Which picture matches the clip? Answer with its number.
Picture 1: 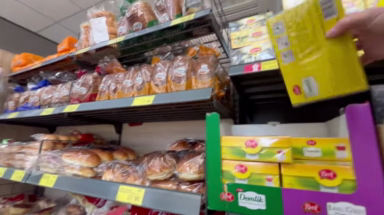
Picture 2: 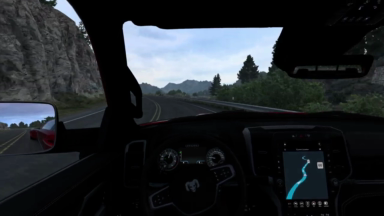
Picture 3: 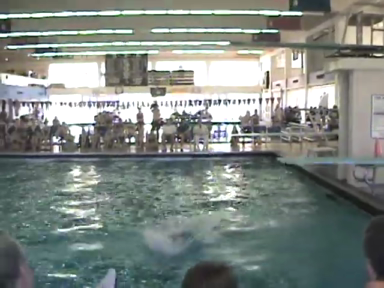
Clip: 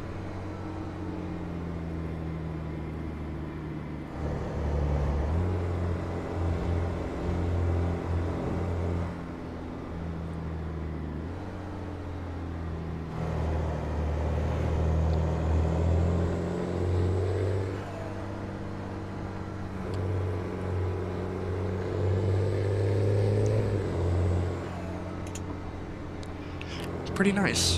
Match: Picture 2